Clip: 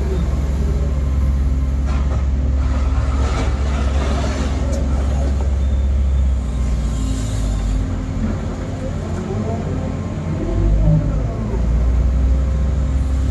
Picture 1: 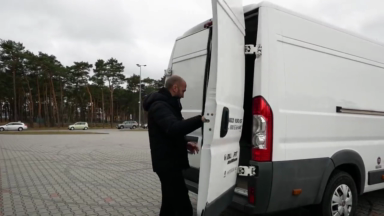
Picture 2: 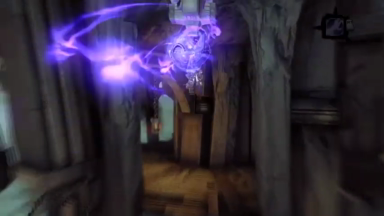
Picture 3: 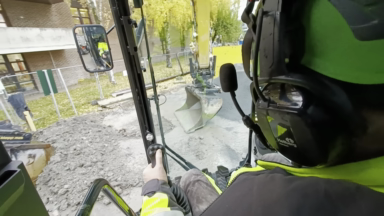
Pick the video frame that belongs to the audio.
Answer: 3